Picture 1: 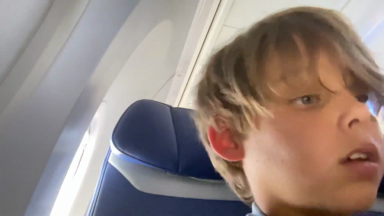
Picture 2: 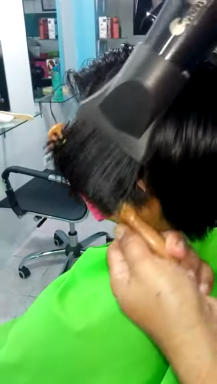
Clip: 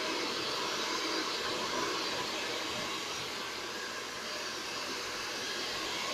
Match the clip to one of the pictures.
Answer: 2